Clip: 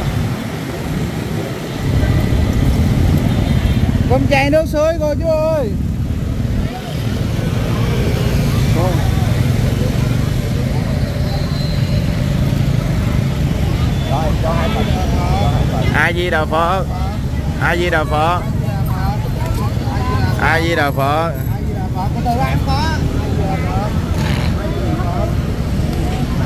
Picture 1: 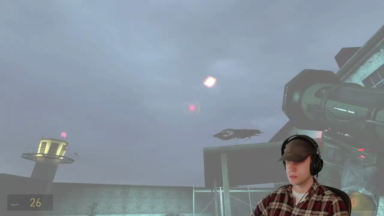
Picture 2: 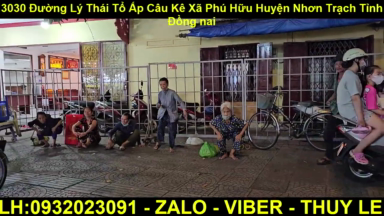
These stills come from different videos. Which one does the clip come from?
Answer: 2